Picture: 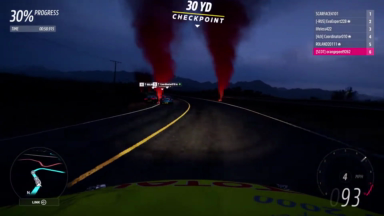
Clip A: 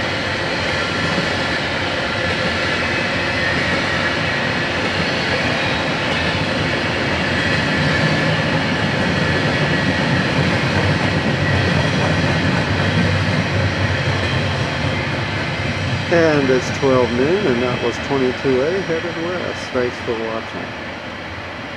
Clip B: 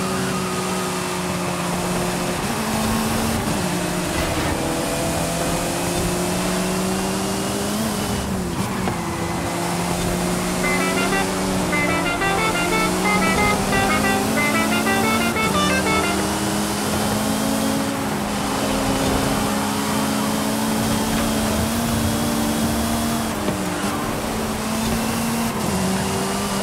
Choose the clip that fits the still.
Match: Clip B